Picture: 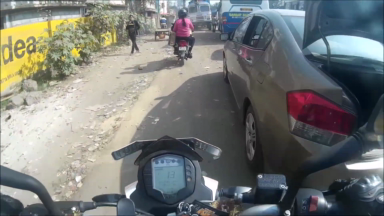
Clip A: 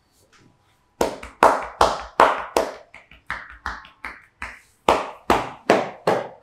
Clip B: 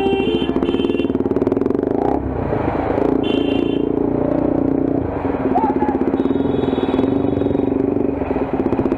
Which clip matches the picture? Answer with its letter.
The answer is B